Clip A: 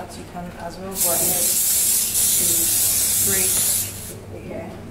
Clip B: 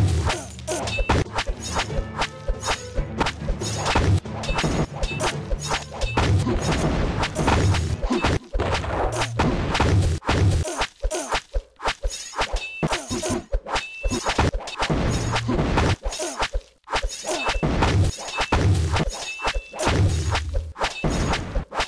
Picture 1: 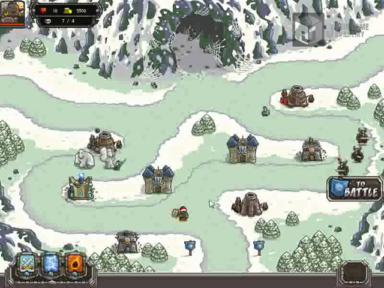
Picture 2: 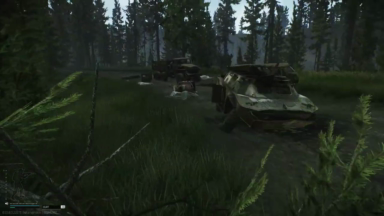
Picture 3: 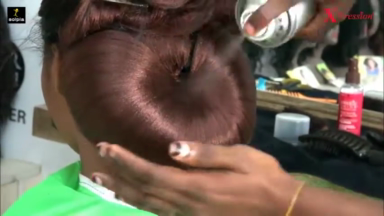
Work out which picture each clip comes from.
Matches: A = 3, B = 1